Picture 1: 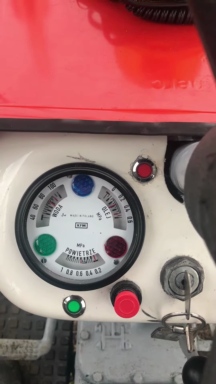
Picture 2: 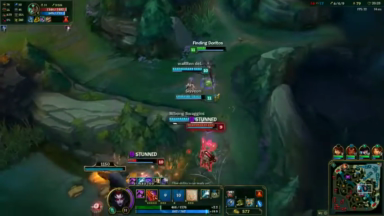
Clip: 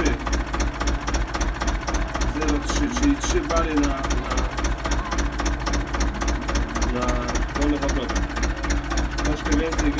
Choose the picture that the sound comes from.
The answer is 1